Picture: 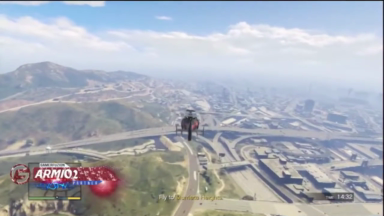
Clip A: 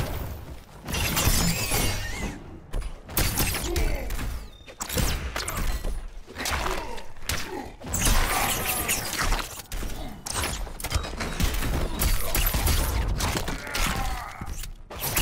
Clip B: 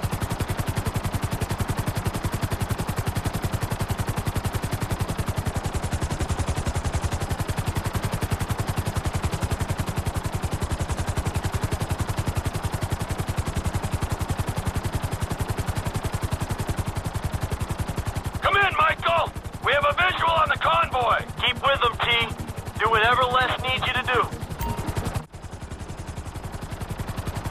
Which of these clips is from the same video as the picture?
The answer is B